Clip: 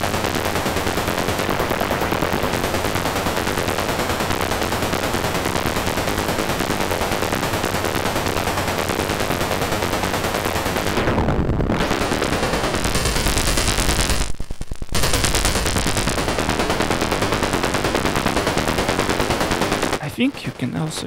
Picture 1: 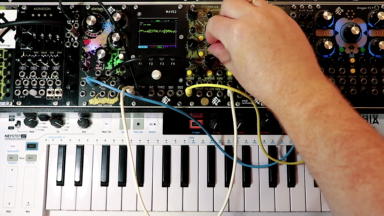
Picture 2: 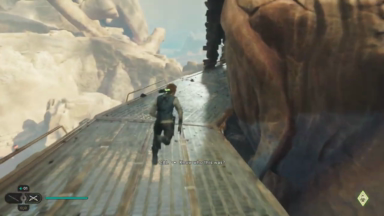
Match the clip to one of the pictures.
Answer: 1